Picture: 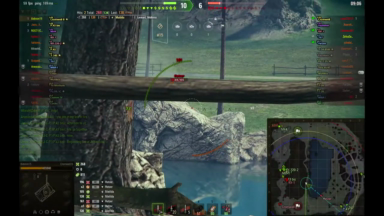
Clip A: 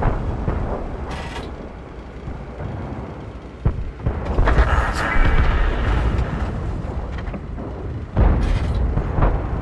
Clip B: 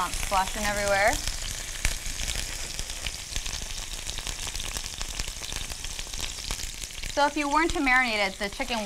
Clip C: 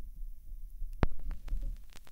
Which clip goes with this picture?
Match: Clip A